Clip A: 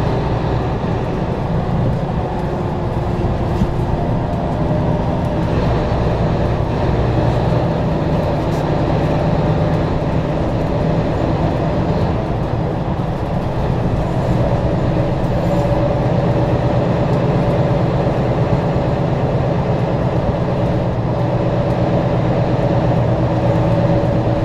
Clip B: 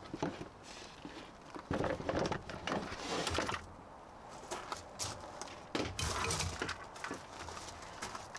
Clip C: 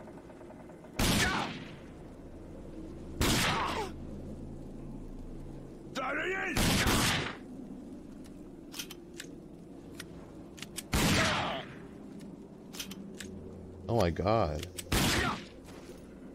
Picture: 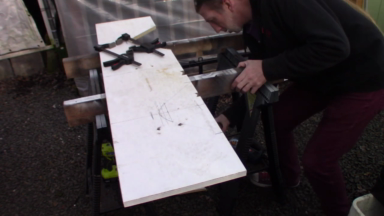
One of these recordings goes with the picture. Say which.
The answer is B